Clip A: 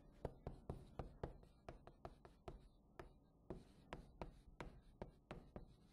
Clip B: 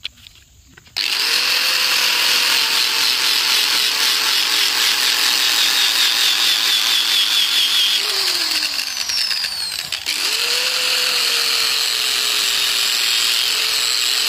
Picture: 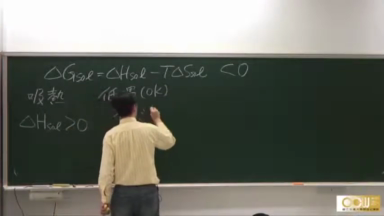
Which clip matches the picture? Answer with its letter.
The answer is A